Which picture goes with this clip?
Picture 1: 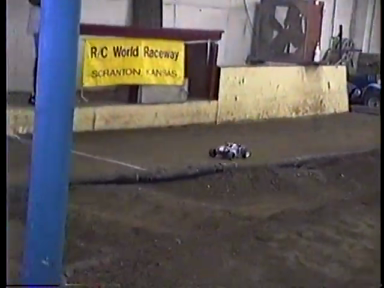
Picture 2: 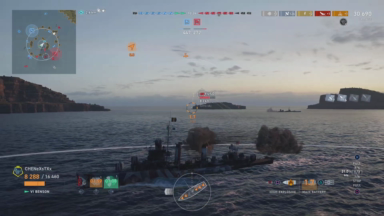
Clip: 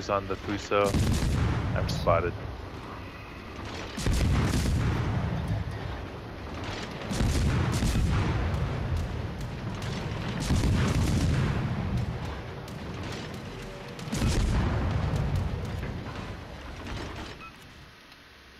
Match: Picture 2